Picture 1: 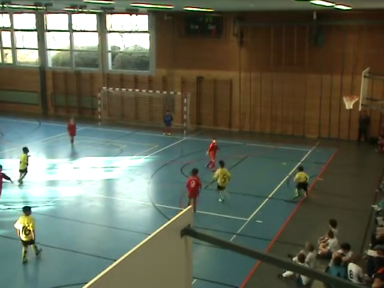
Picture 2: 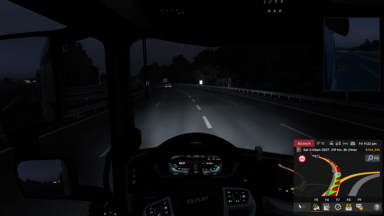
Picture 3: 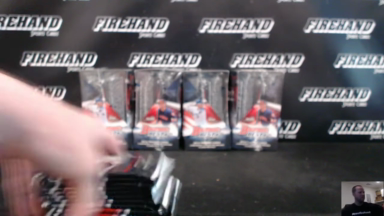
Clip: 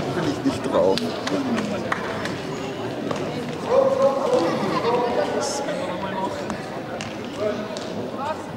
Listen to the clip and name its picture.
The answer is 1